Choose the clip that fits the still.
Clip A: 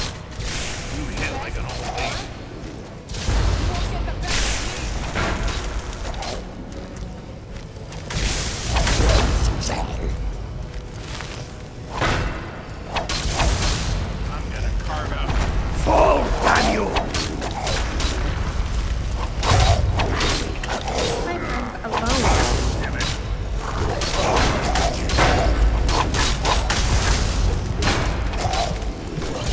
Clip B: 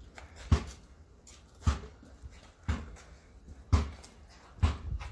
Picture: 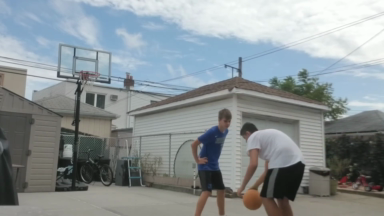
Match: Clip B